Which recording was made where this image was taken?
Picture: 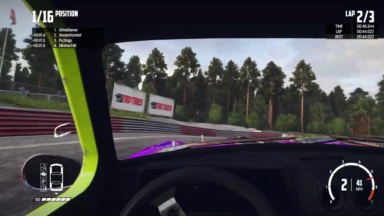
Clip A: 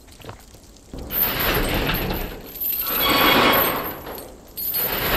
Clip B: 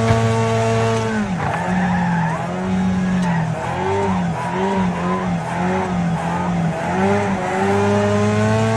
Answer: B